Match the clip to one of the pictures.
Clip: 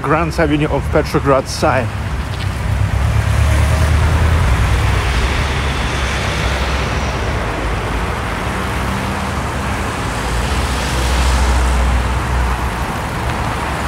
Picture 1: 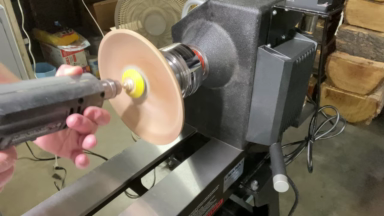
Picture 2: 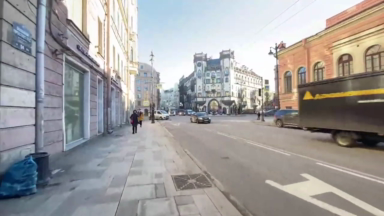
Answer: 2